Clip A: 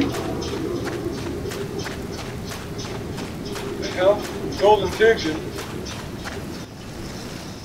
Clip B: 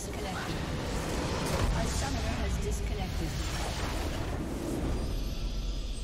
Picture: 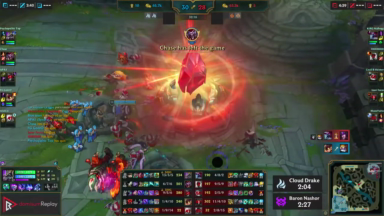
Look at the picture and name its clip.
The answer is B